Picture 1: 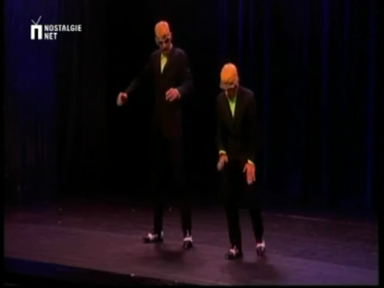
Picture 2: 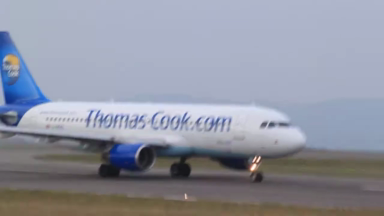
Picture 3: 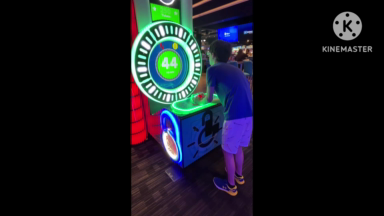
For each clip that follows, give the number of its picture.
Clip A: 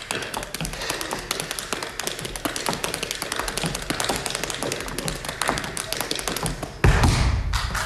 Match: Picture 1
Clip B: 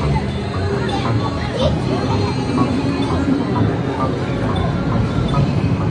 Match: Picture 3